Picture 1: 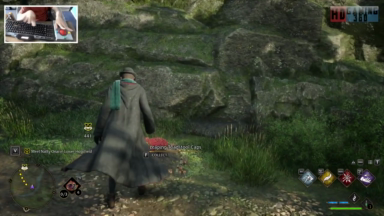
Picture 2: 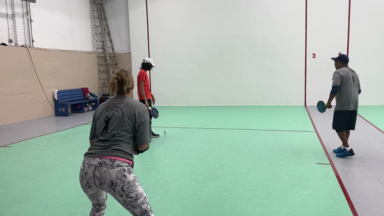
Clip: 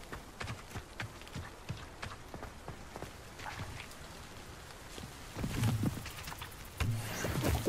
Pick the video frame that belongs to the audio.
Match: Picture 1